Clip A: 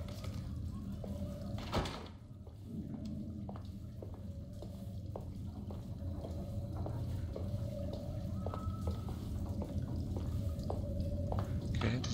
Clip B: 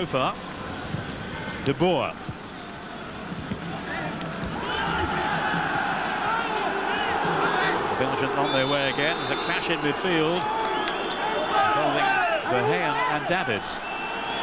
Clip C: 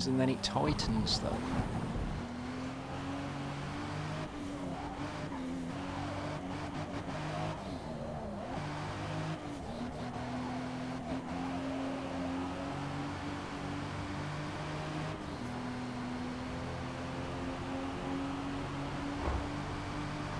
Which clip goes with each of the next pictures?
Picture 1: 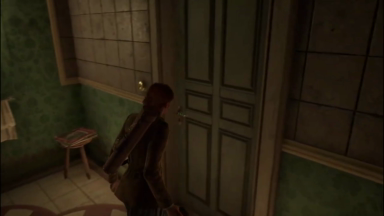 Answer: A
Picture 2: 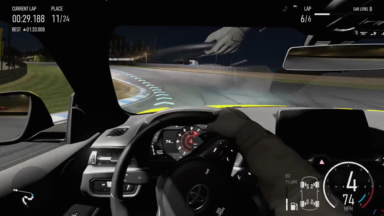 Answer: C